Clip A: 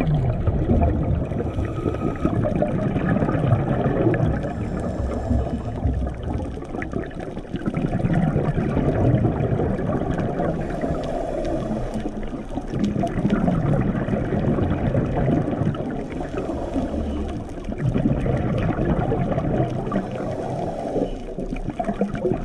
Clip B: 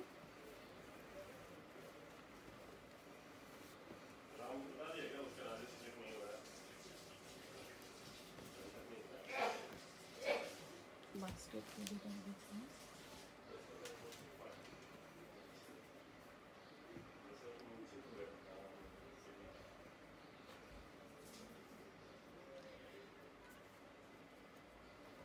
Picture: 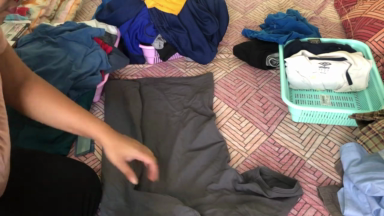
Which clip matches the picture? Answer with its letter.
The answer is B